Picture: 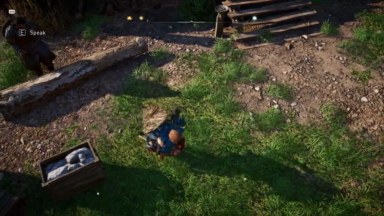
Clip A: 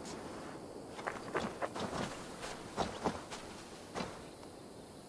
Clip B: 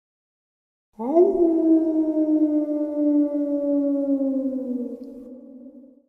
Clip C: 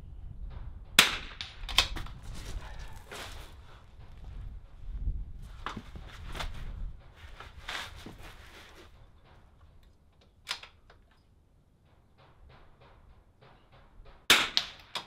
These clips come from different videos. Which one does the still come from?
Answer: A